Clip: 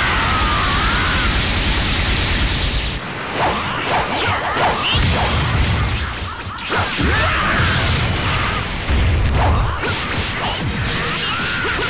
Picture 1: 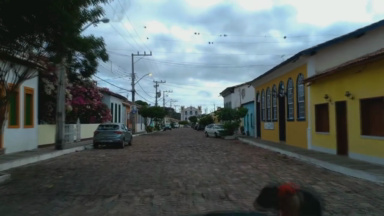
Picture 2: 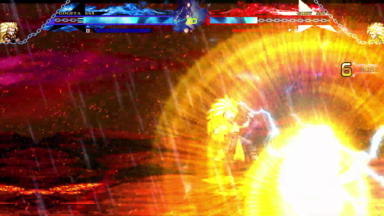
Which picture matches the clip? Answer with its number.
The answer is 2